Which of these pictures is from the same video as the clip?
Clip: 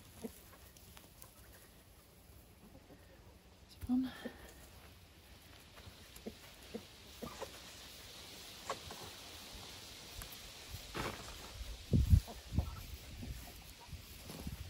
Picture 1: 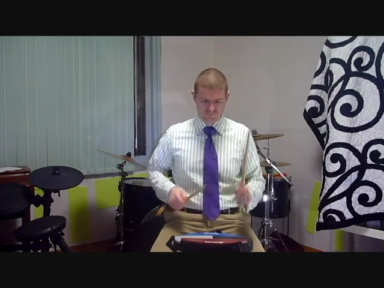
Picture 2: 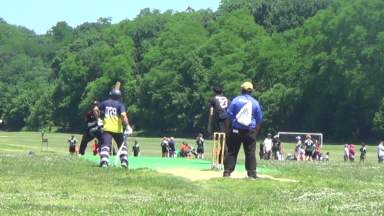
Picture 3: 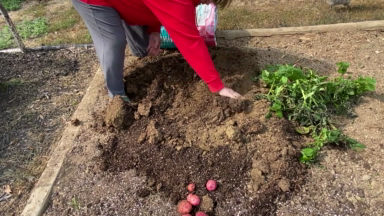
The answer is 3